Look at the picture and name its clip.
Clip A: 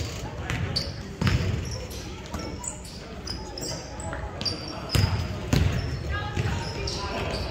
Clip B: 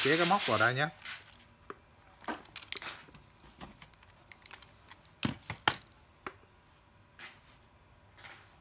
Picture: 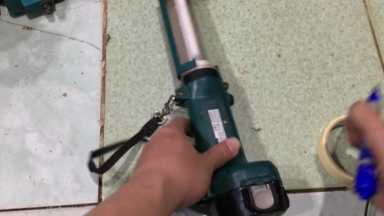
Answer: B